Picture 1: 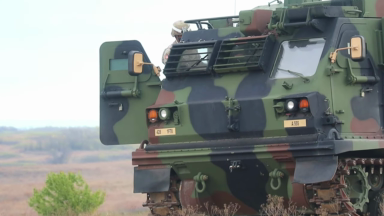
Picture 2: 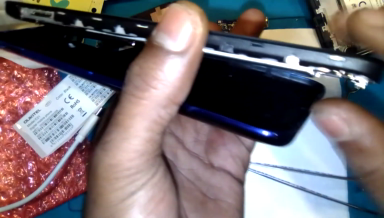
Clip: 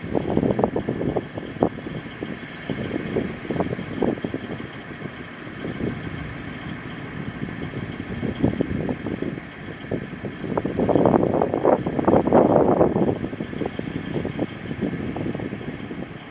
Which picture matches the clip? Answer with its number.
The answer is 1